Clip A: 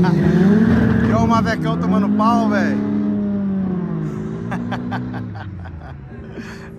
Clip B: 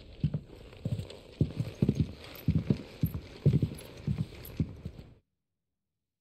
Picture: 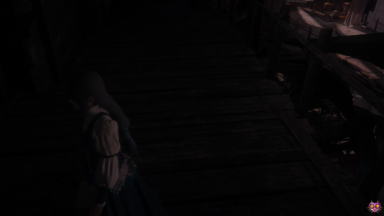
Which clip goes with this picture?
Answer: B